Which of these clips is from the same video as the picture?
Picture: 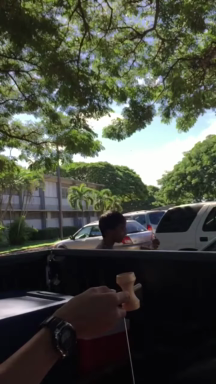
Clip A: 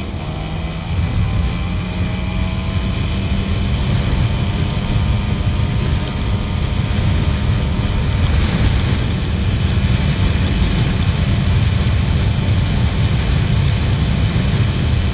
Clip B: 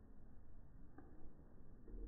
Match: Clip B